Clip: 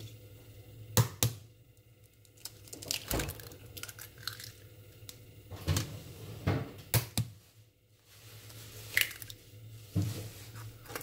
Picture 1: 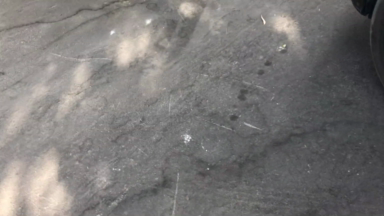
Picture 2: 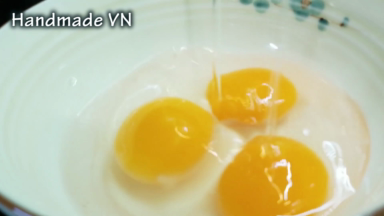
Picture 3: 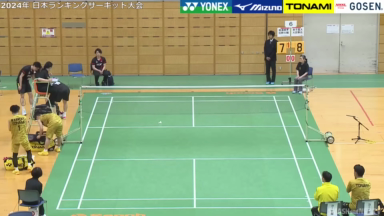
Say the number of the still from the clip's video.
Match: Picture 2